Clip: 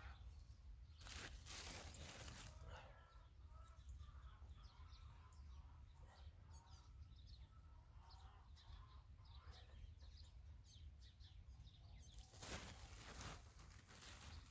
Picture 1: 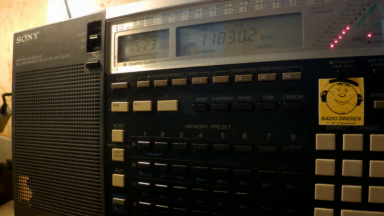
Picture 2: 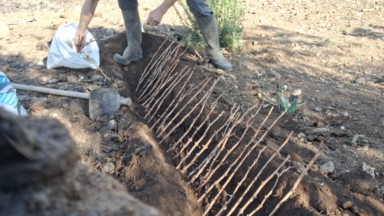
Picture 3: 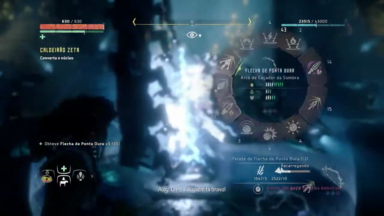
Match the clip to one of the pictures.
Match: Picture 2